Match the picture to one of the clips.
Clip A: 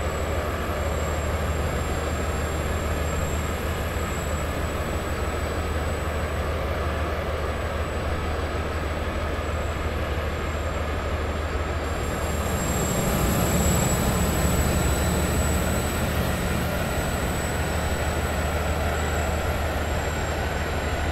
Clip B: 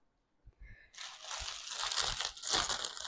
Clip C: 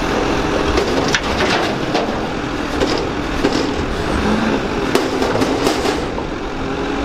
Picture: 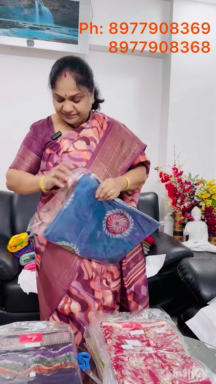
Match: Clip B